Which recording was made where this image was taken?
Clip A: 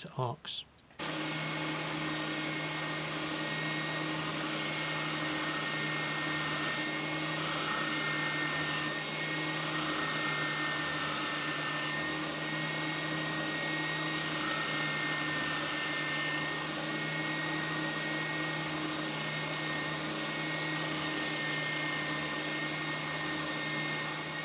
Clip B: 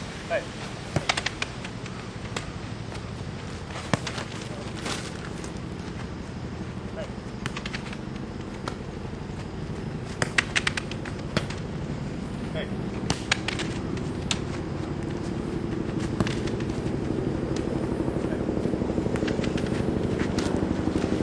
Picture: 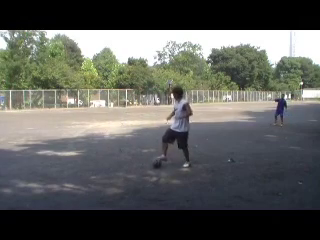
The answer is B